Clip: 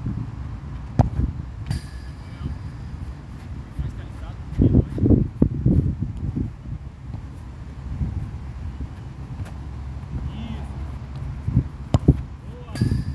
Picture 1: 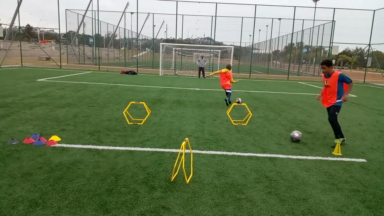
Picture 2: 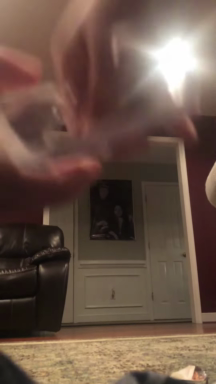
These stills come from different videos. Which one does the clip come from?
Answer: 1